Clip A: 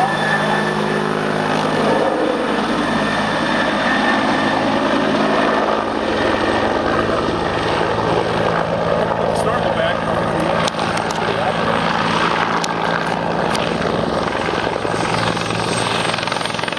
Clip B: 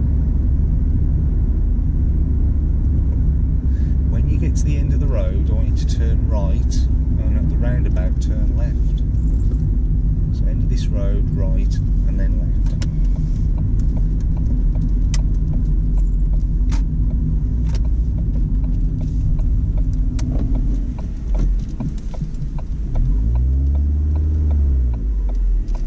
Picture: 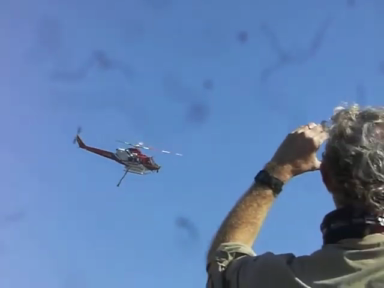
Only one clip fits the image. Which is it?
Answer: A